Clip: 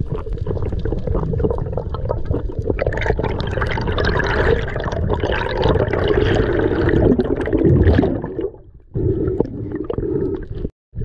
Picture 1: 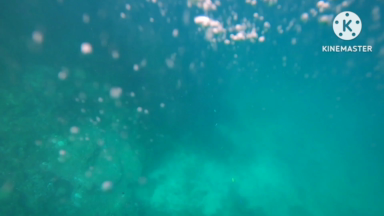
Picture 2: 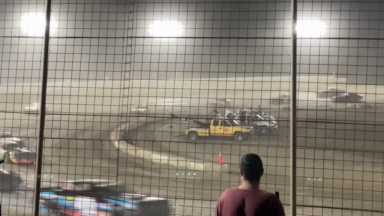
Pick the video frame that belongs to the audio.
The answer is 1